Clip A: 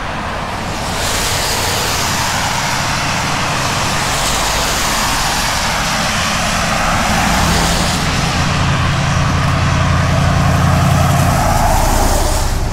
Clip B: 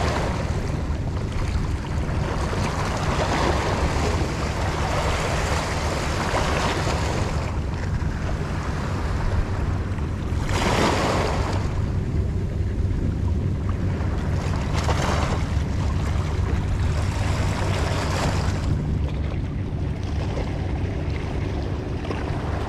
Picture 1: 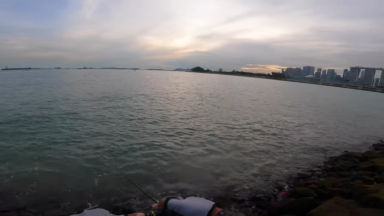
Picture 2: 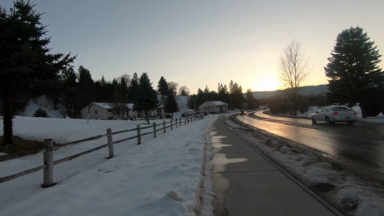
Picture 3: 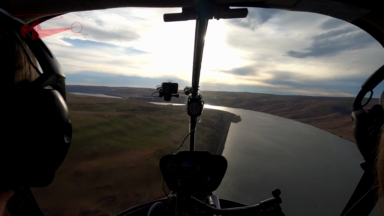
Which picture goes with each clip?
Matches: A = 2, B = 1